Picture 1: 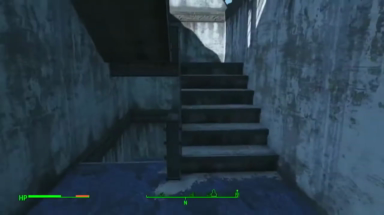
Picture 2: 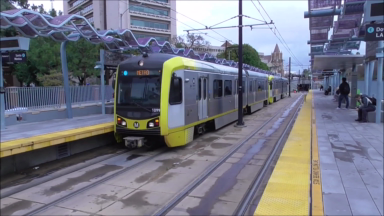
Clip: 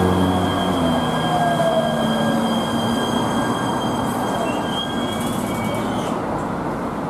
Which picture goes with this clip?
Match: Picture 2